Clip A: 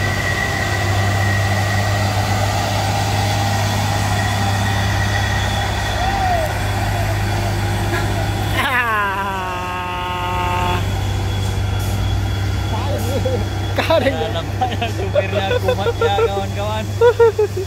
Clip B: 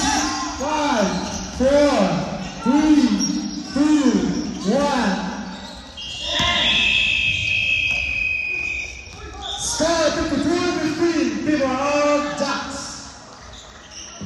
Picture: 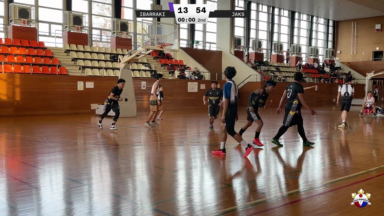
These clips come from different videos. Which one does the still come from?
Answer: B